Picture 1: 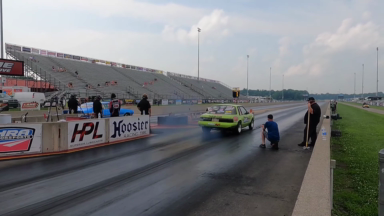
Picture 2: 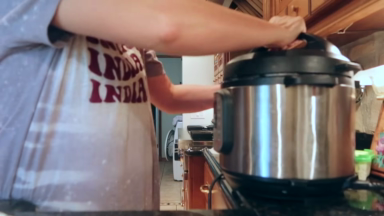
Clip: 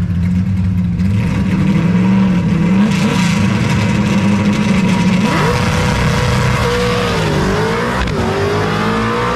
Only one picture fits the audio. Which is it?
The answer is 1